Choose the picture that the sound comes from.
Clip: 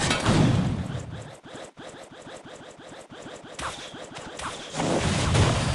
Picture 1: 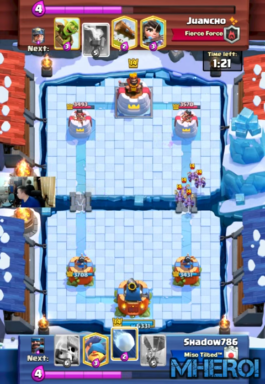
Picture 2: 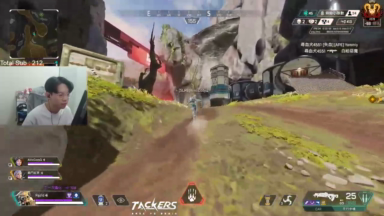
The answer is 1